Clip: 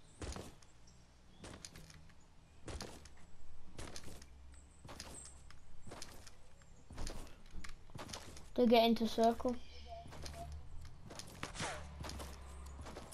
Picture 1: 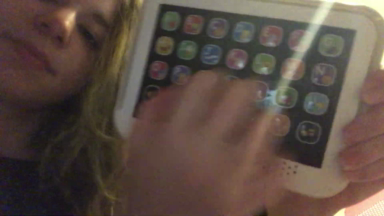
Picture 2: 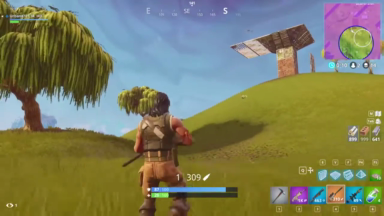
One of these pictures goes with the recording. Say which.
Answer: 2